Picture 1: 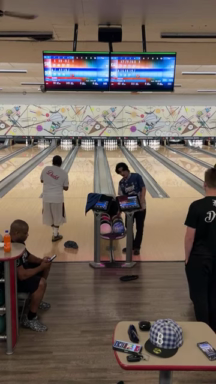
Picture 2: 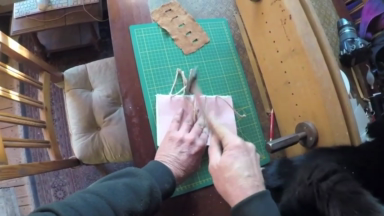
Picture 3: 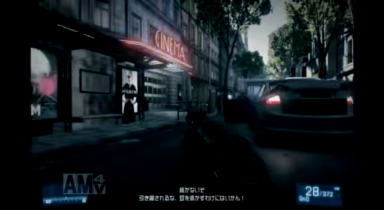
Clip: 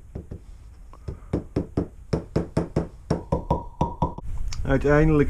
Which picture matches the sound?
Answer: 2